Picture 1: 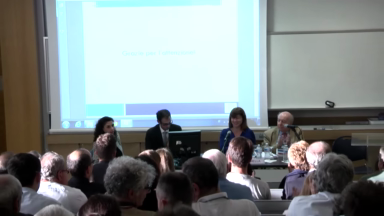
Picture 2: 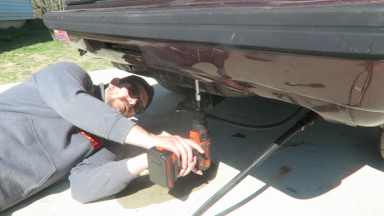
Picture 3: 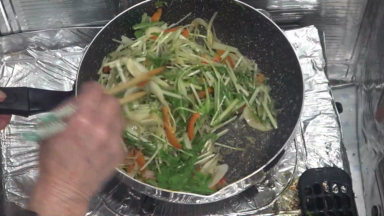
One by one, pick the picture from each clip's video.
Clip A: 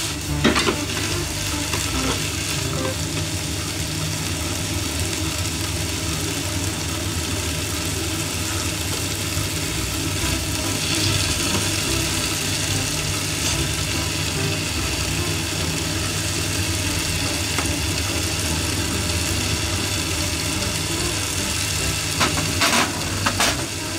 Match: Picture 3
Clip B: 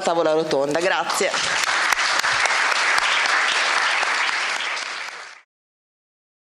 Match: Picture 1